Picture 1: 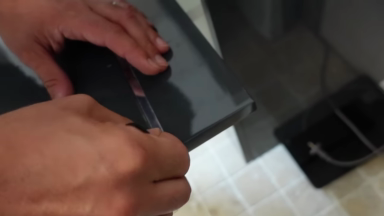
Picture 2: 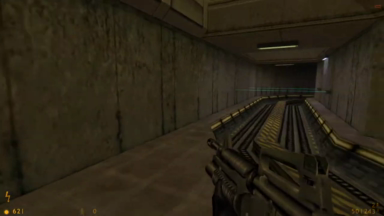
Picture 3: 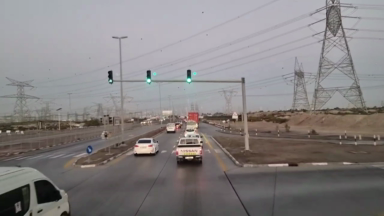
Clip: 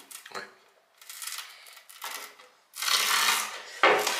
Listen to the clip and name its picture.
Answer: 1